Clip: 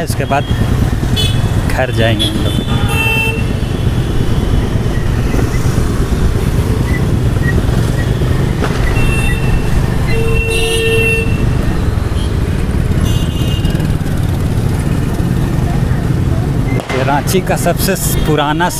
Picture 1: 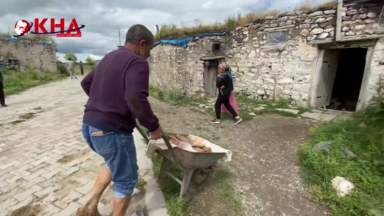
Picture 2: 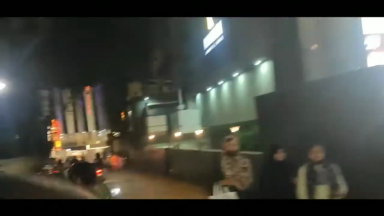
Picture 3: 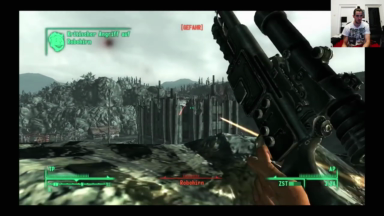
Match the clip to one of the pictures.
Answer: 2